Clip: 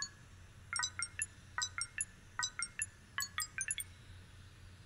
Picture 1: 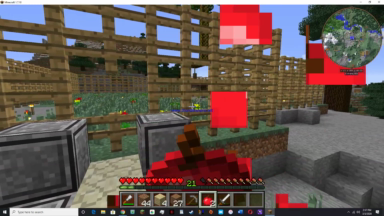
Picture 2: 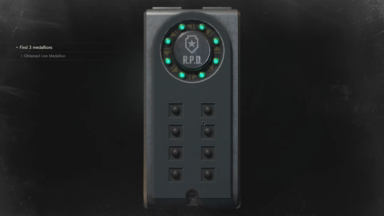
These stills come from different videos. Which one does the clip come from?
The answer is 2